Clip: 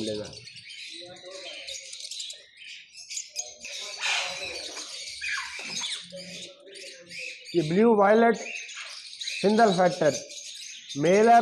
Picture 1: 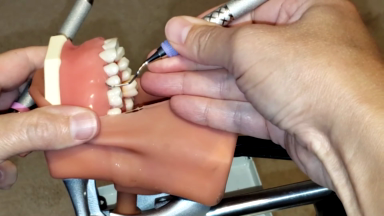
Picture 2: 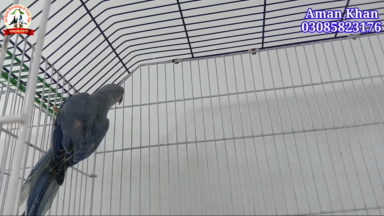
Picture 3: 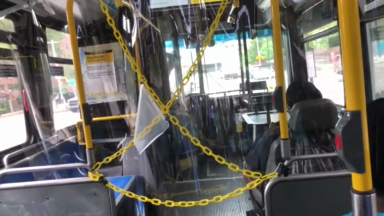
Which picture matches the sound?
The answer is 2